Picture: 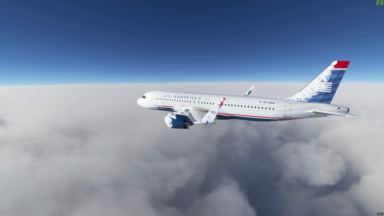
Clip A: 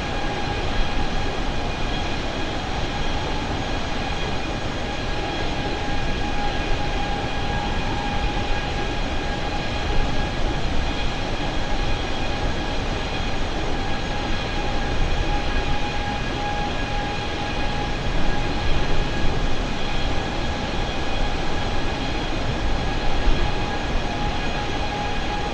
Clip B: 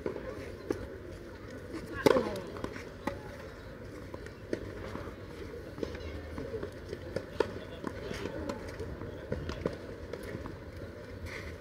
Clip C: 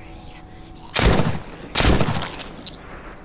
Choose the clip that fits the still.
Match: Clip A